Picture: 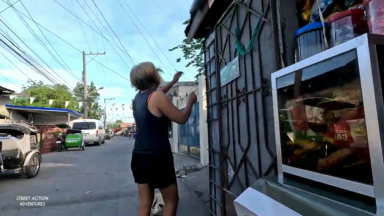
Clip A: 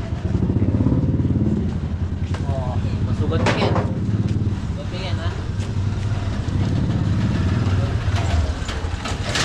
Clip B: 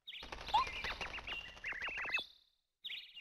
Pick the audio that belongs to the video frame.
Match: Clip A